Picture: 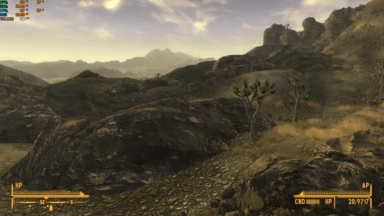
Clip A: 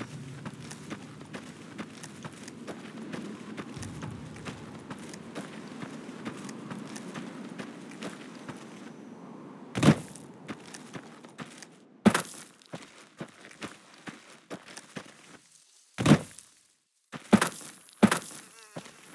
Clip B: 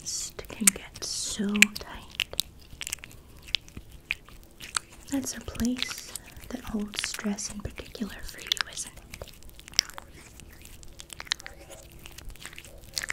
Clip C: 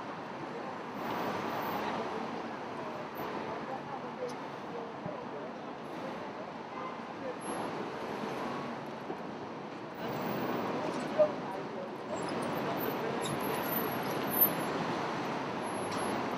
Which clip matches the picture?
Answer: A